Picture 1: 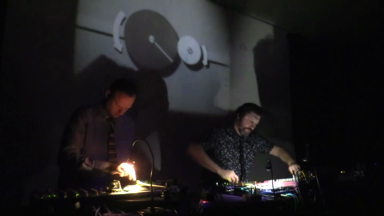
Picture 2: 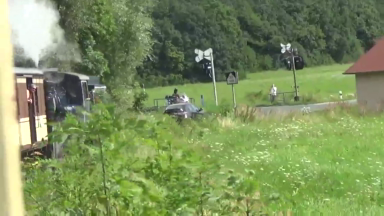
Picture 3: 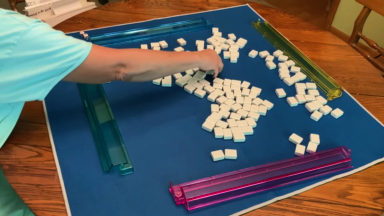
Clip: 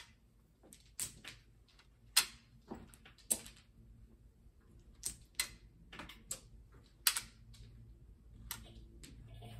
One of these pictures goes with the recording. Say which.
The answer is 3